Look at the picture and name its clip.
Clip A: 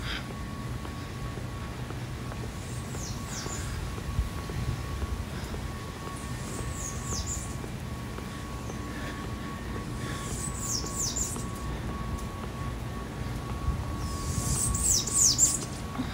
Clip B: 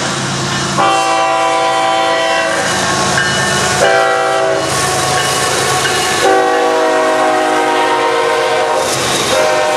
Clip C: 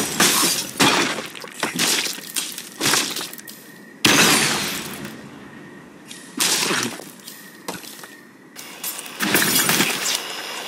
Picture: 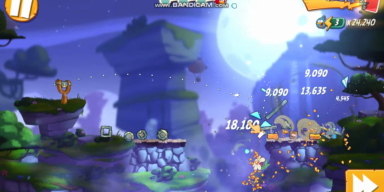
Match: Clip C